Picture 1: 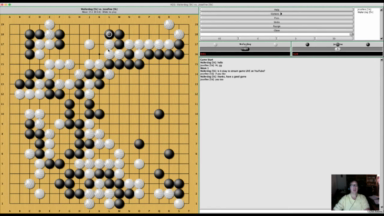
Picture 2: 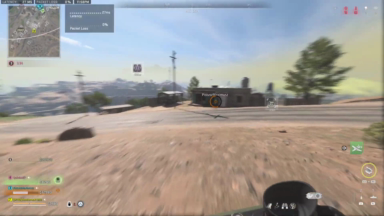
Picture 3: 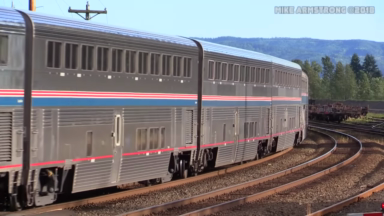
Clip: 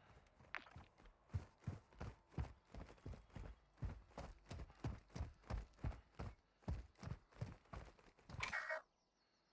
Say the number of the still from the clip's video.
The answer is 2